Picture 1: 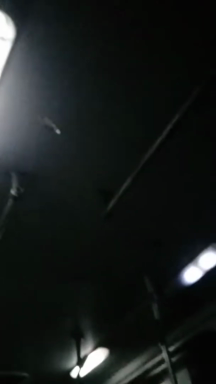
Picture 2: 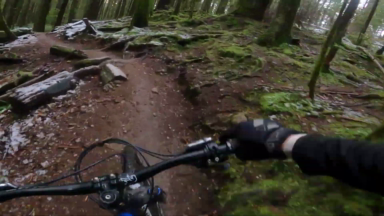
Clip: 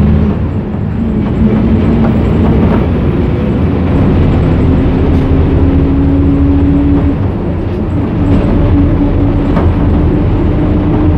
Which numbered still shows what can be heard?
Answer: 1